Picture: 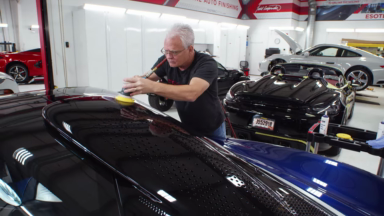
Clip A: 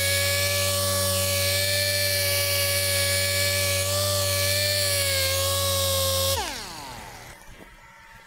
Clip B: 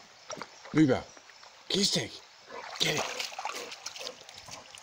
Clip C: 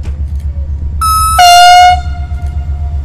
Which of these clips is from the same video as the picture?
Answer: A